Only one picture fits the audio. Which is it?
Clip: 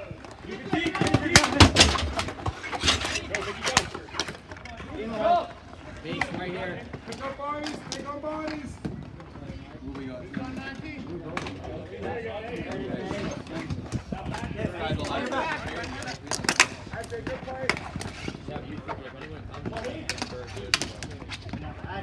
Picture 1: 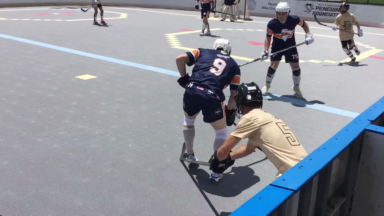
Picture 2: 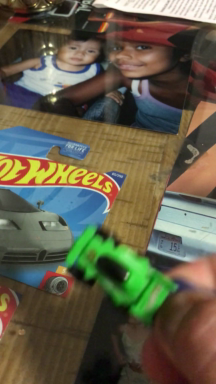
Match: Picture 1